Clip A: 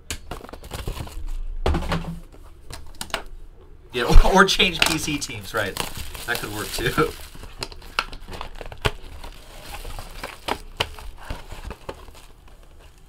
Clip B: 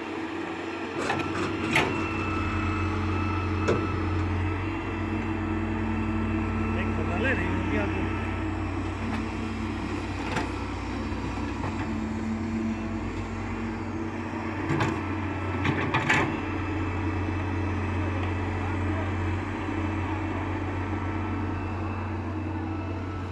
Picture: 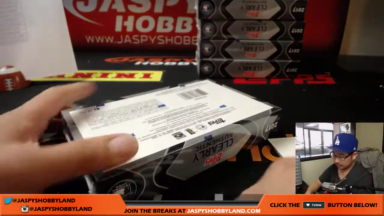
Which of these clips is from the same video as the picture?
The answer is A